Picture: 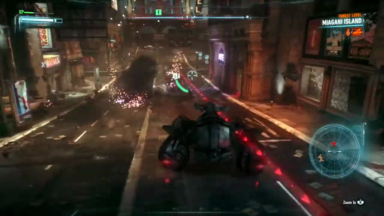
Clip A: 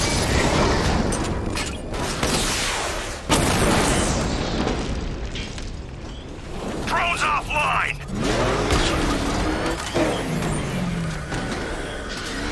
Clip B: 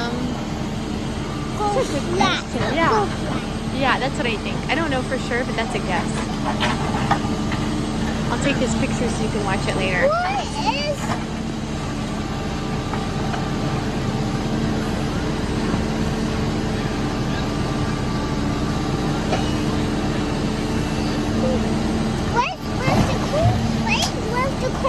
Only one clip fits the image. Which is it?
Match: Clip A